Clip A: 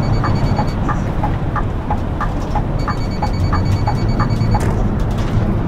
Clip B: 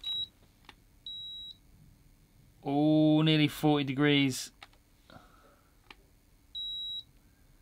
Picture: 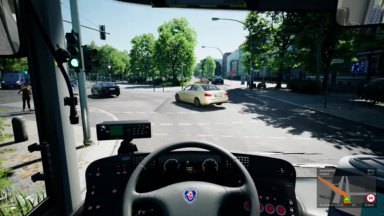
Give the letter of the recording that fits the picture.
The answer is A